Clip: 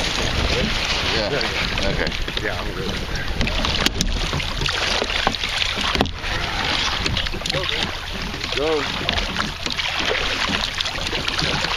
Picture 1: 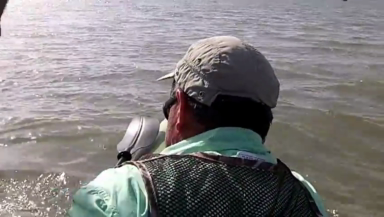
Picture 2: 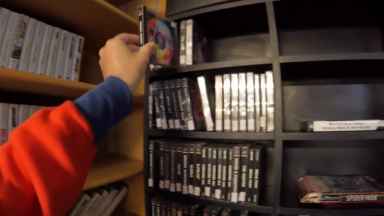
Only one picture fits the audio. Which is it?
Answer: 1